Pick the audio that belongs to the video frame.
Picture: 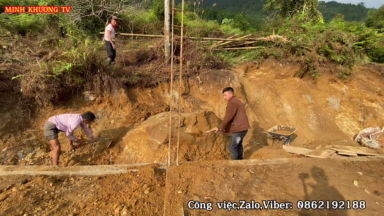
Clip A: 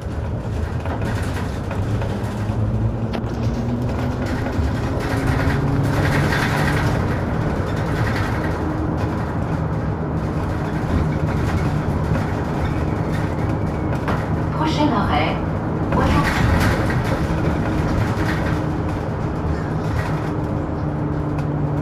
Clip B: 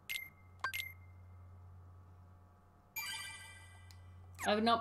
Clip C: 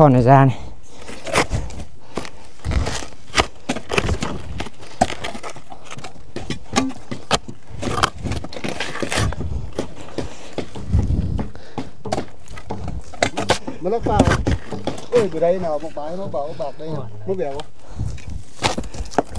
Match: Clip C